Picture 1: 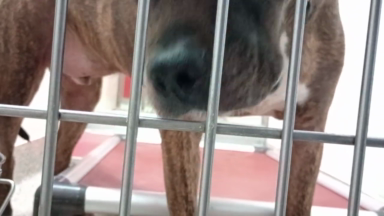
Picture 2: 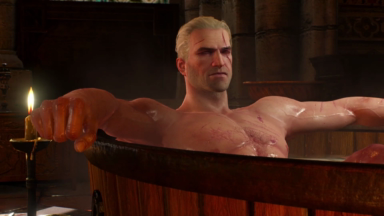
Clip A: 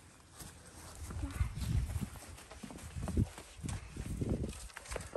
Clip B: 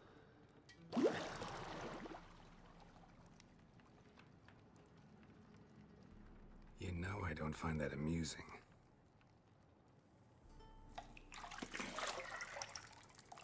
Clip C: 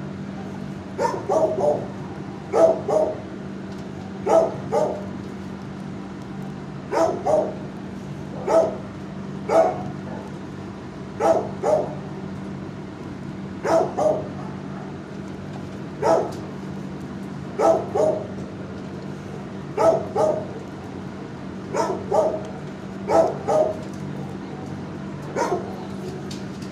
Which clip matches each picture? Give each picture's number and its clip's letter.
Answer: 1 C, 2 B